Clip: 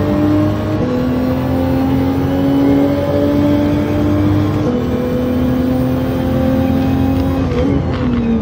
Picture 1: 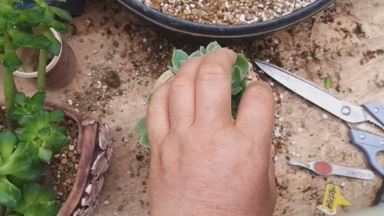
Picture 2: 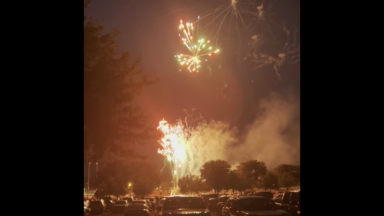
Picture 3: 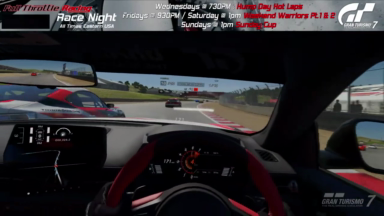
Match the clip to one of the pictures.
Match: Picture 3